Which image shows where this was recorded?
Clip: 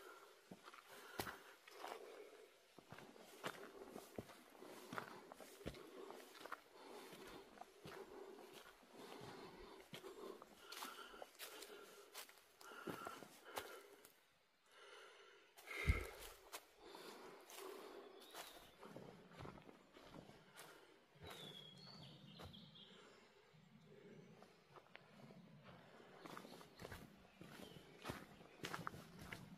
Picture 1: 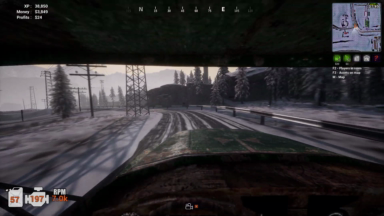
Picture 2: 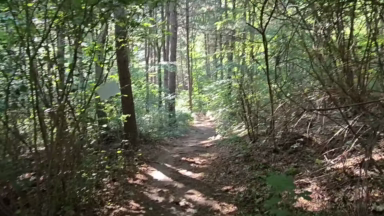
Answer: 2